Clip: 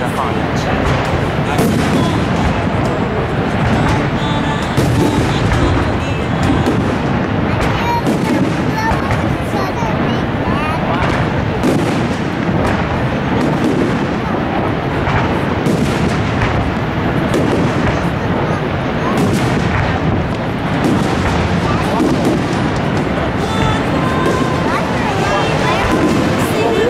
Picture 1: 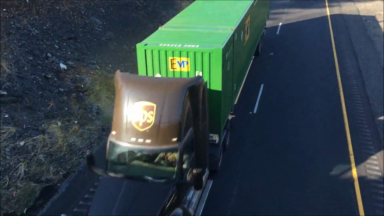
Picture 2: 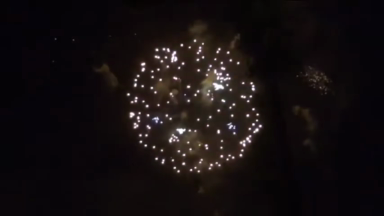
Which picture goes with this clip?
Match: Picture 2